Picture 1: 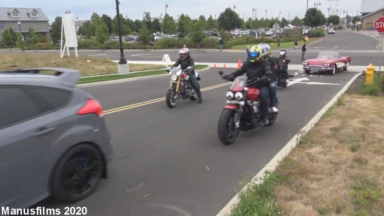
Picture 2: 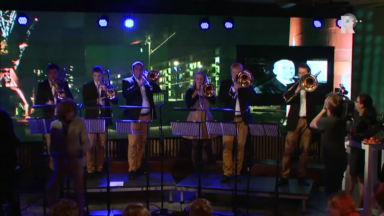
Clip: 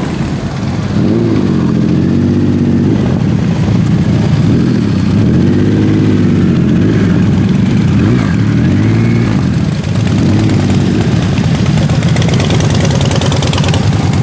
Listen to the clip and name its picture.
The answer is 1